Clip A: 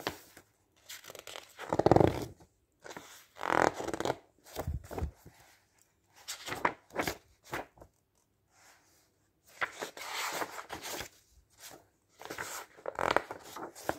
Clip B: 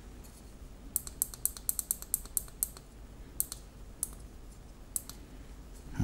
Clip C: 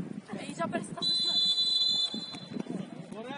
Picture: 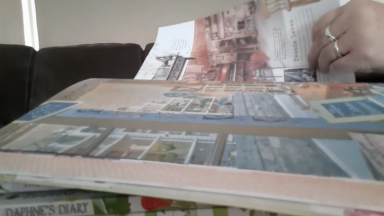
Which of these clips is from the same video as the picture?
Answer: A